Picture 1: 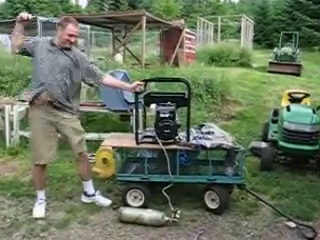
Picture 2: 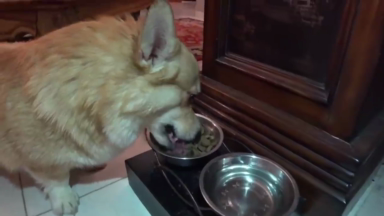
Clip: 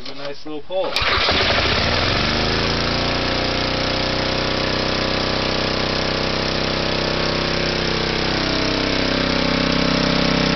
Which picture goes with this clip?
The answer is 1